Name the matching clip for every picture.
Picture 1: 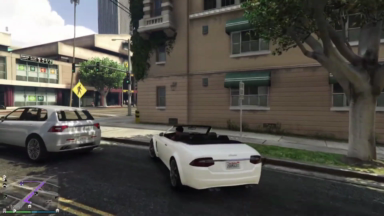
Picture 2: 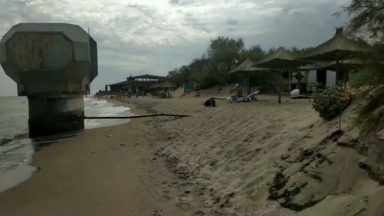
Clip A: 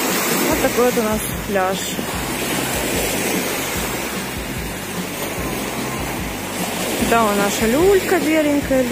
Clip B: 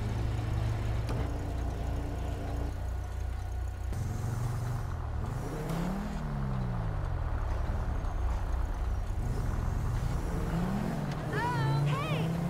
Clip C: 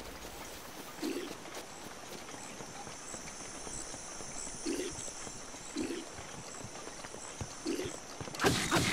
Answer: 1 B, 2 A